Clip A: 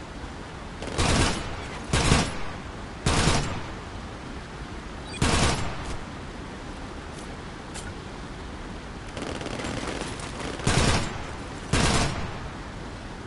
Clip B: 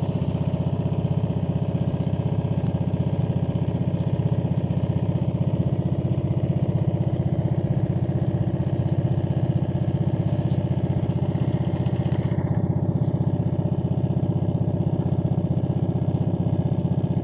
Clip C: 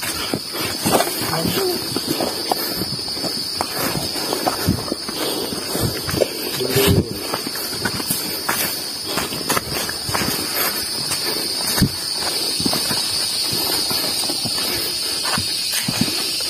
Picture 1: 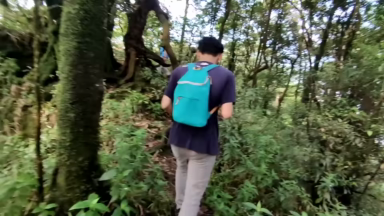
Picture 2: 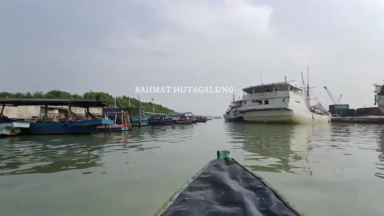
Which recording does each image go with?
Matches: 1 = C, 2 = B